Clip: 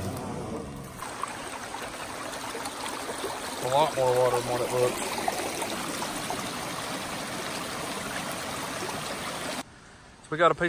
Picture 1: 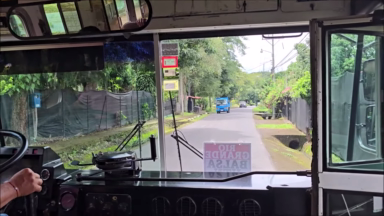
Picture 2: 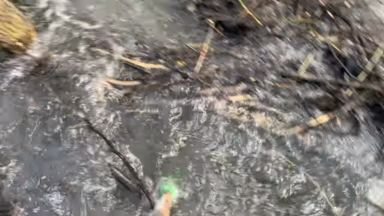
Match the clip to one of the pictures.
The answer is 2